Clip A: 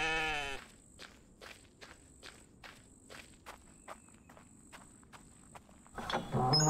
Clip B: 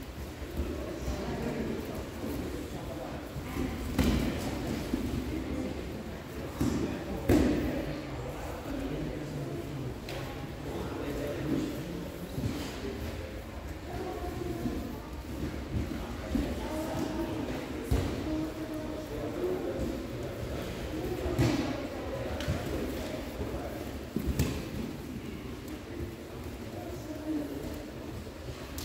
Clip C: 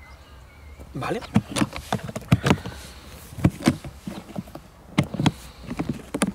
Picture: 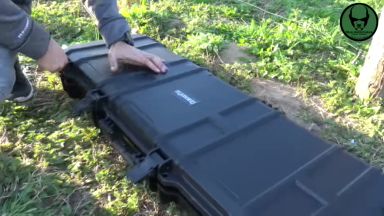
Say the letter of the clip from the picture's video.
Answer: C